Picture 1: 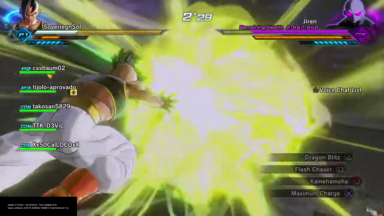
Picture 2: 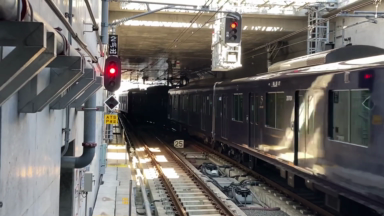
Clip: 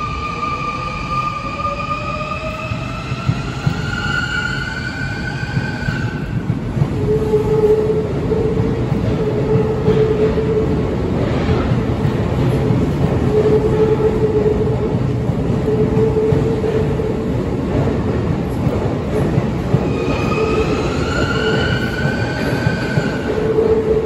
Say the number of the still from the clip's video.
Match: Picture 2